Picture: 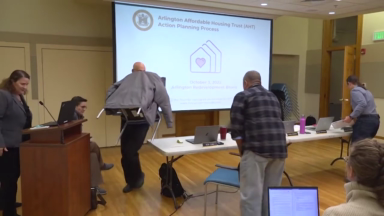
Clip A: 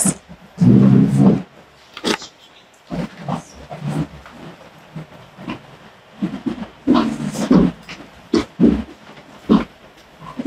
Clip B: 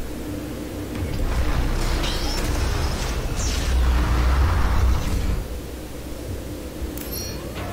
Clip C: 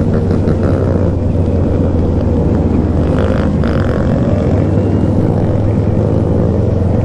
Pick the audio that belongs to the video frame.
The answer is A